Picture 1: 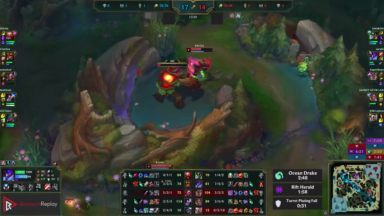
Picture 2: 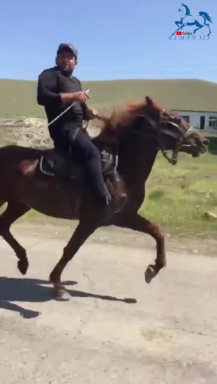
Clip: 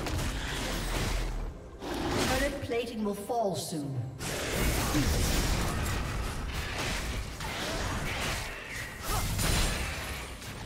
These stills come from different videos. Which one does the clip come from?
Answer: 1